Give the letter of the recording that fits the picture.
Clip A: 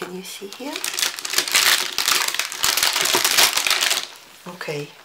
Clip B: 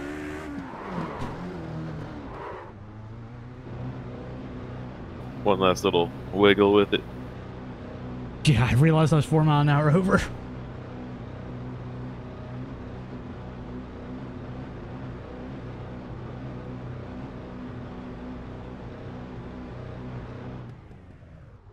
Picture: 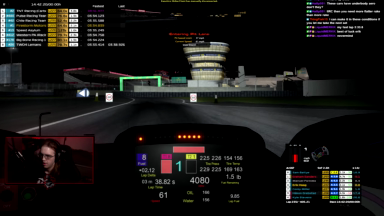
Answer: B